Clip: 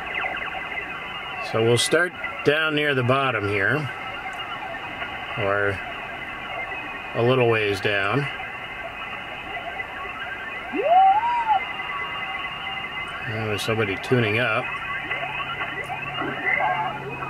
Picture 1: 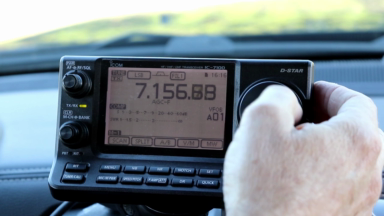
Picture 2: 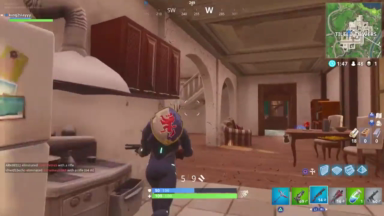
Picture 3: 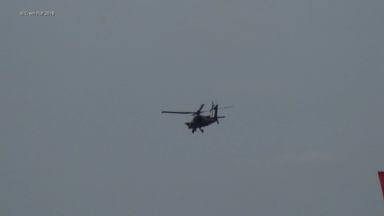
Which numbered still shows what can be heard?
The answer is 1